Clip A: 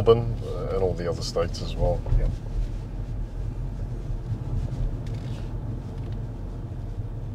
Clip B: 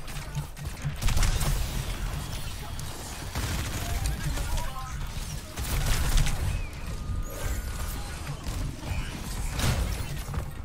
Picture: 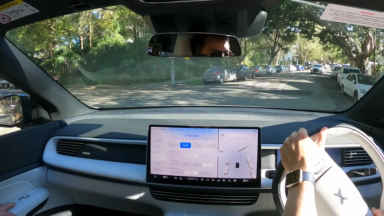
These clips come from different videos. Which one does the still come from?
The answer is A